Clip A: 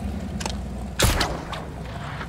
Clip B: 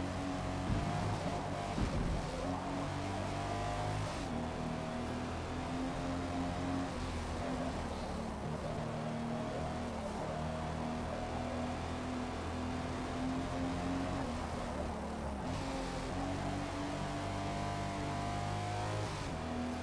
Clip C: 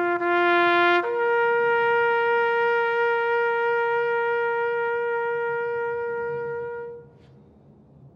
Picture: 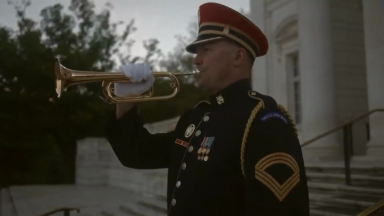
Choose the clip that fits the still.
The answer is C